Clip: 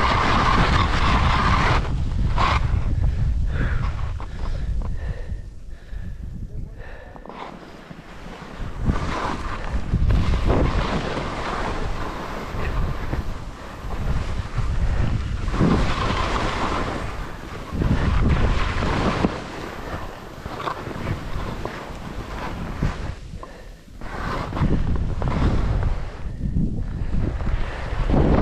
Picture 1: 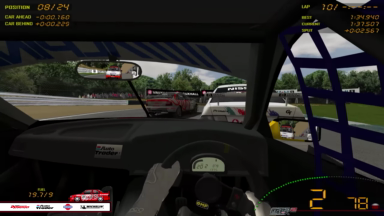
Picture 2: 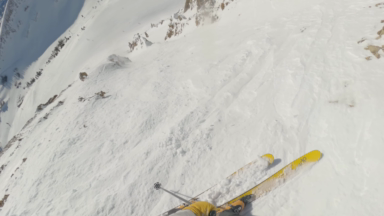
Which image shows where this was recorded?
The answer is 2